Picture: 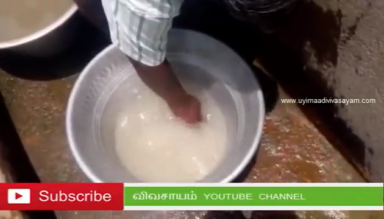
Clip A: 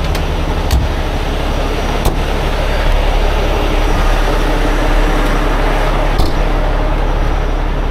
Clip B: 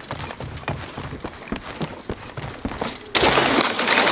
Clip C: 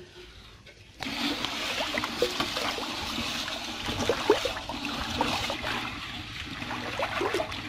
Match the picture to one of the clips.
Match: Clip C